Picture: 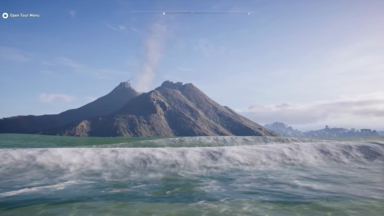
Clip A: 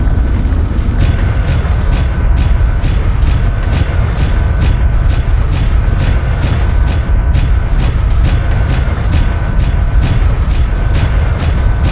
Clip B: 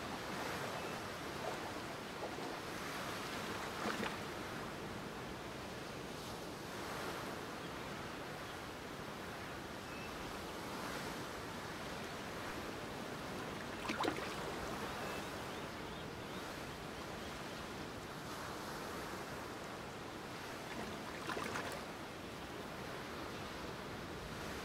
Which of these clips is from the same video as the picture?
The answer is B